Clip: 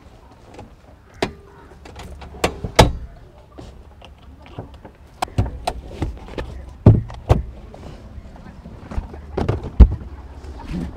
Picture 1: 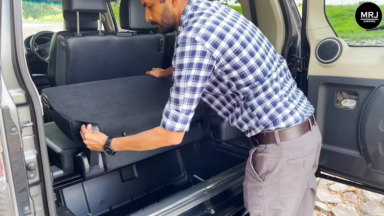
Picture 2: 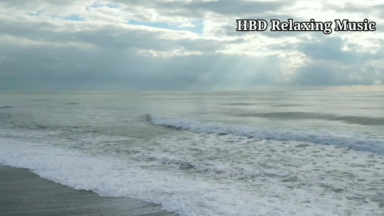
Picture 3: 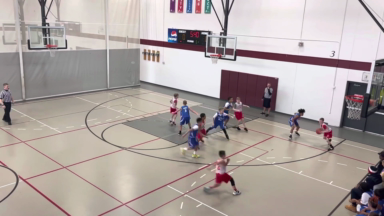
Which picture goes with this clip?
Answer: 1